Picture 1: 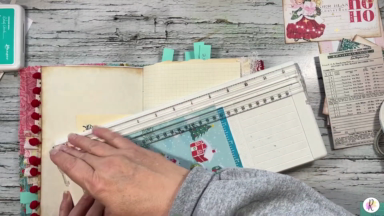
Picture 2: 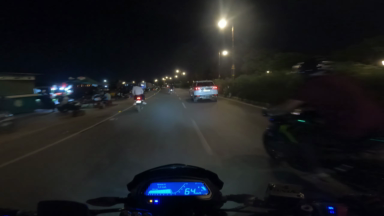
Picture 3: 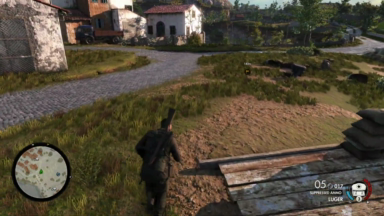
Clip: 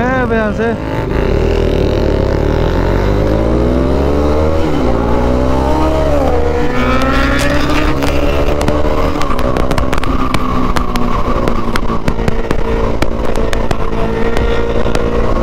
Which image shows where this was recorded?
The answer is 2